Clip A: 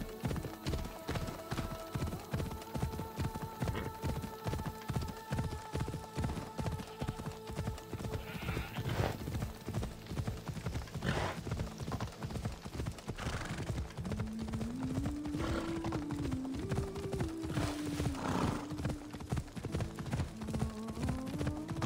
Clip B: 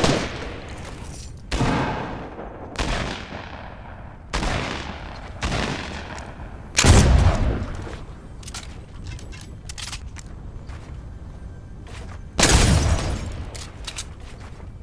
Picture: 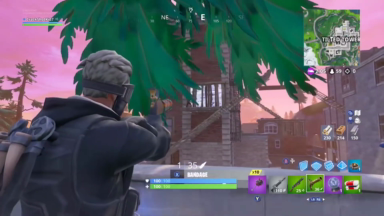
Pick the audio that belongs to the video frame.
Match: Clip B